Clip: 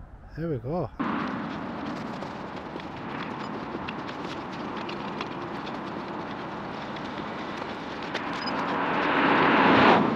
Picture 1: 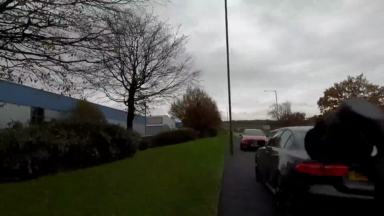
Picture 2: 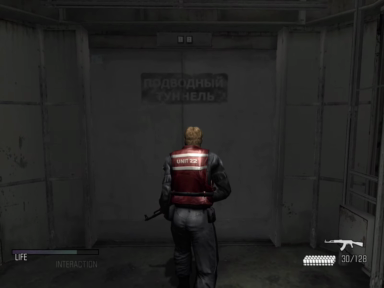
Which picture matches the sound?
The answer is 1